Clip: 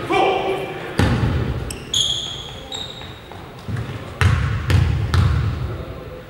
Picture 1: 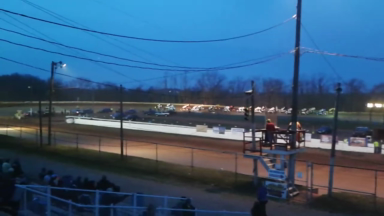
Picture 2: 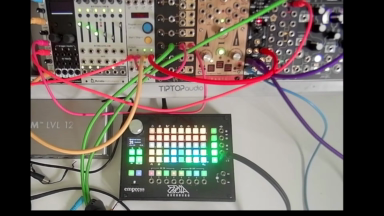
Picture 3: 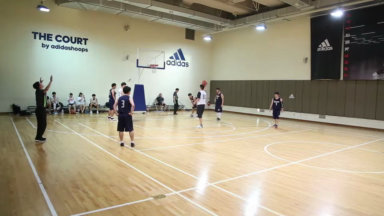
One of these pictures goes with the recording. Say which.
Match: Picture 3